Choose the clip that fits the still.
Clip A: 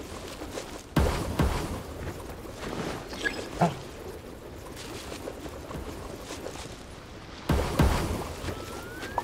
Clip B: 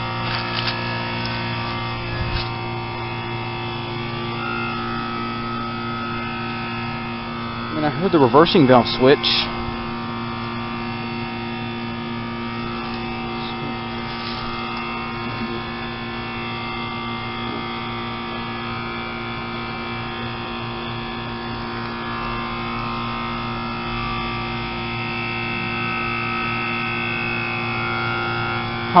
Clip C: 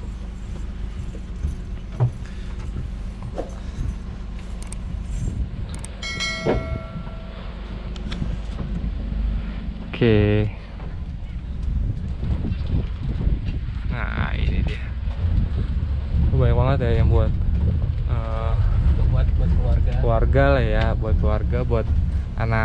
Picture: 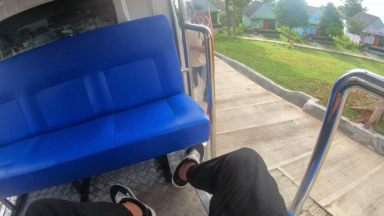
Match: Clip C